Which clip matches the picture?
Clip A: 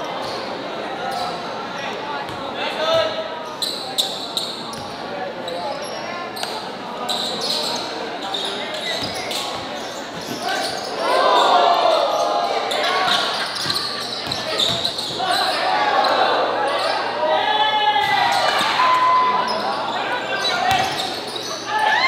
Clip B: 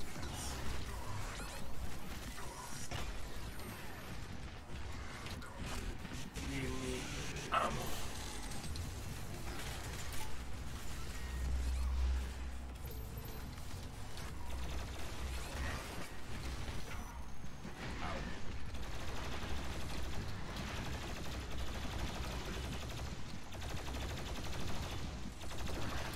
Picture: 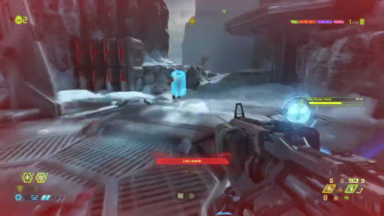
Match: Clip B